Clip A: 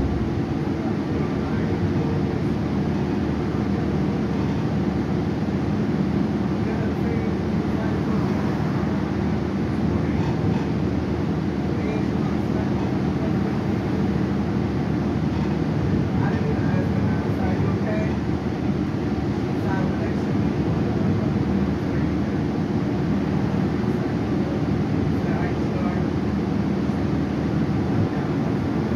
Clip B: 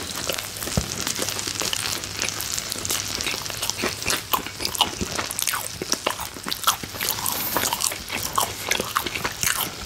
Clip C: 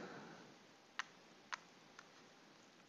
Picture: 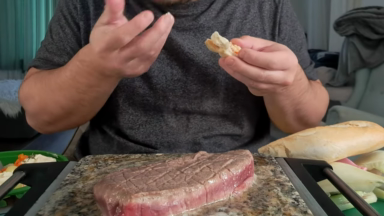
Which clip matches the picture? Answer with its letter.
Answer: B